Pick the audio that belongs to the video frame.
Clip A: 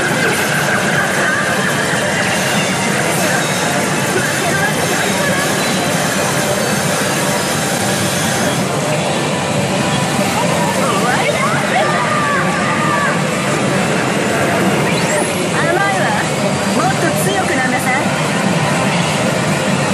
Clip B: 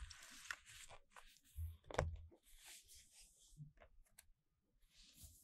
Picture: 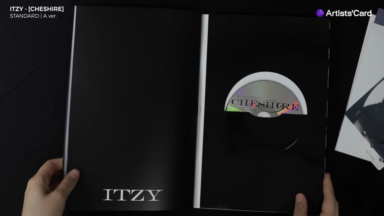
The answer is B